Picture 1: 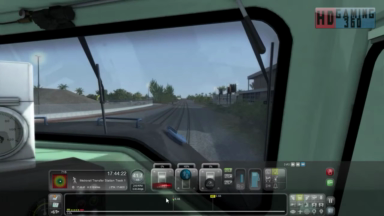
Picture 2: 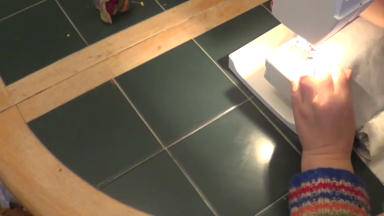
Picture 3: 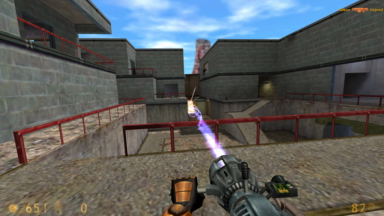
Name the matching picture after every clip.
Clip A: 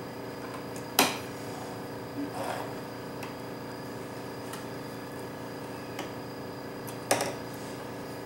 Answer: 2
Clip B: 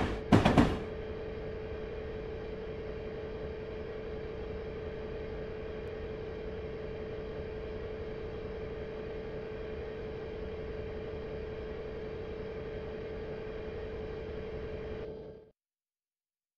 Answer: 1